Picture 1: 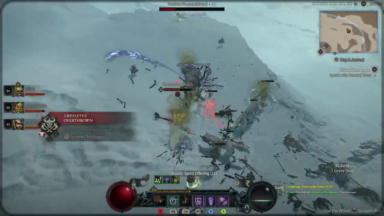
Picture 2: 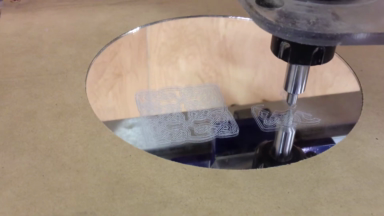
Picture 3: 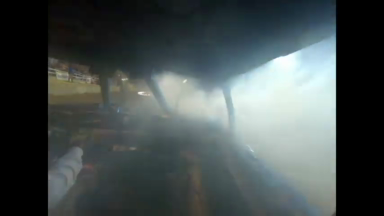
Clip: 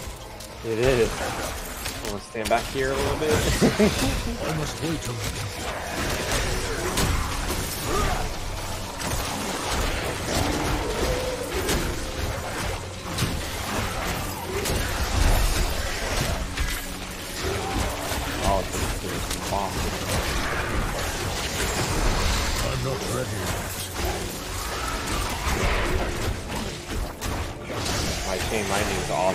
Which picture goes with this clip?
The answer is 1